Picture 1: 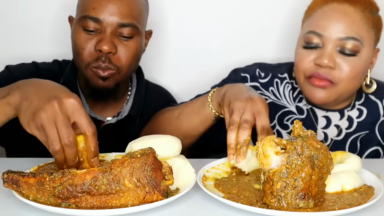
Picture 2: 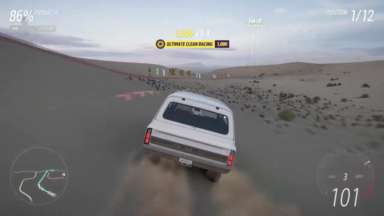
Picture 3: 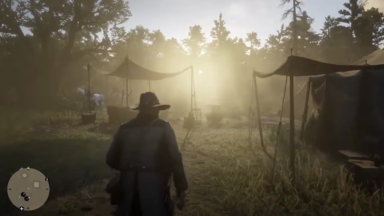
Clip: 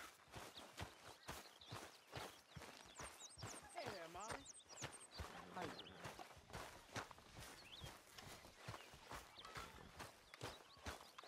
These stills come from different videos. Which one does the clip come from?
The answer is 3